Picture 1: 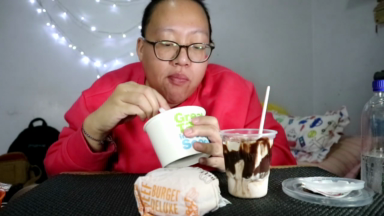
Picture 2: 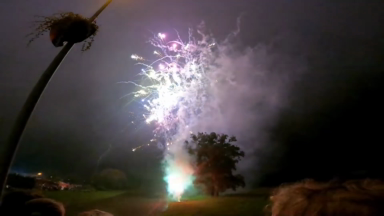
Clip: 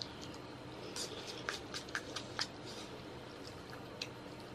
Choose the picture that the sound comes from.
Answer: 1